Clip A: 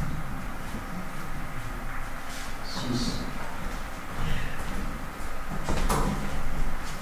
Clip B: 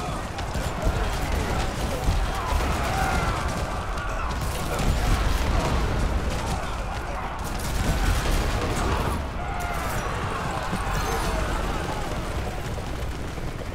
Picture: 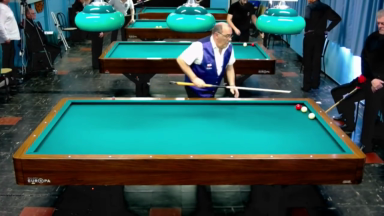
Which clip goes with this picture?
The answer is A